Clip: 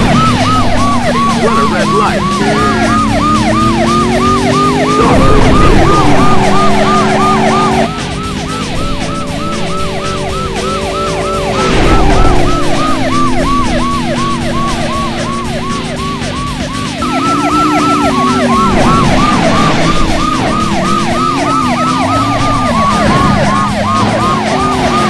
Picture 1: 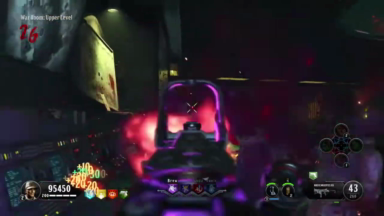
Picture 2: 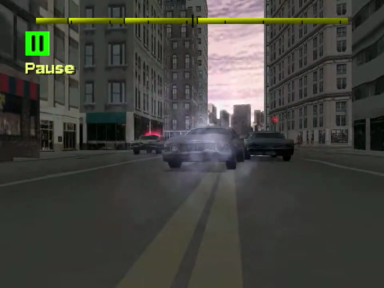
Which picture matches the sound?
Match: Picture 2